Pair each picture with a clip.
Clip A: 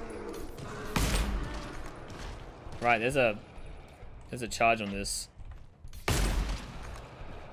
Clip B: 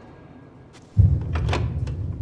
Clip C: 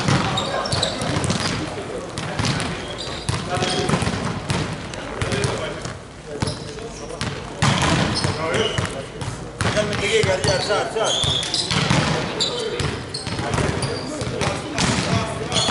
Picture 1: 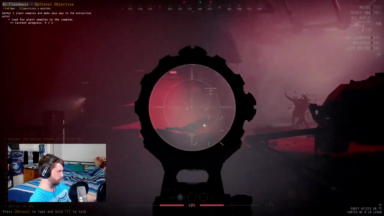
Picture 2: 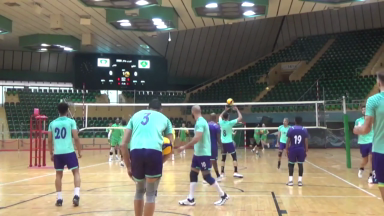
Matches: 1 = A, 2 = C